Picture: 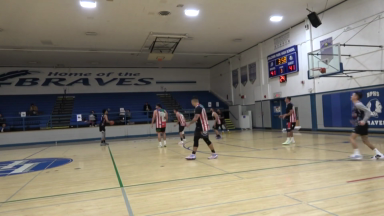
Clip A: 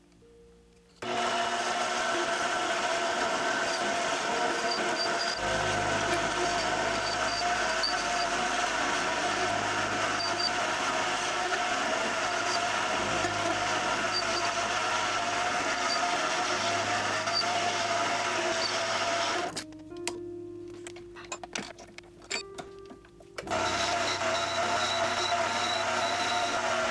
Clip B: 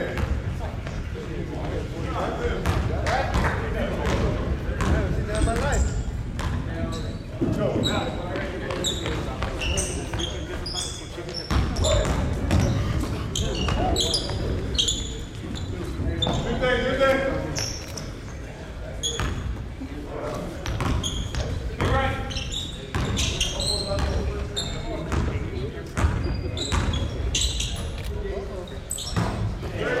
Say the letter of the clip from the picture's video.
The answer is B